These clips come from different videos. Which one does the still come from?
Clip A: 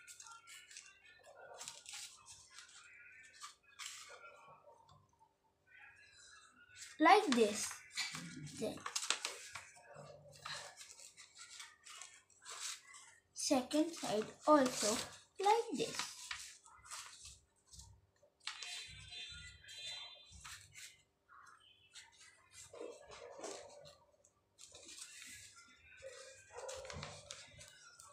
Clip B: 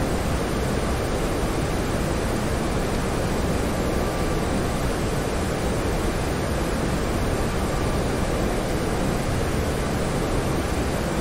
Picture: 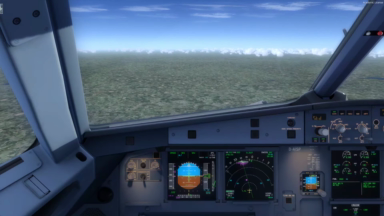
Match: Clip B